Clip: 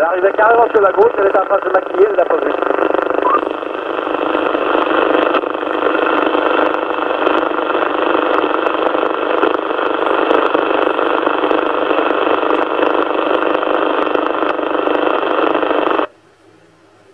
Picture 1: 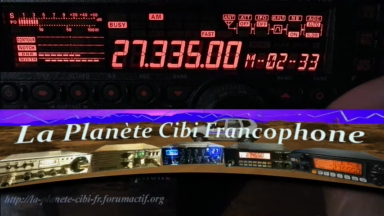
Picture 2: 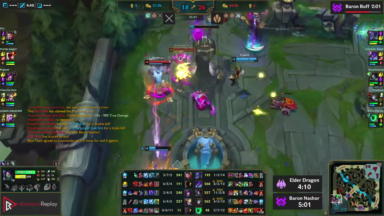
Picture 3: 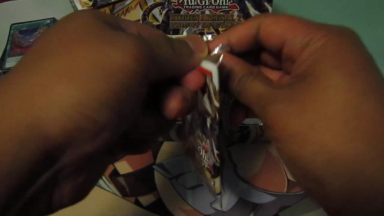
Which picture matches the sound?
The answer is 1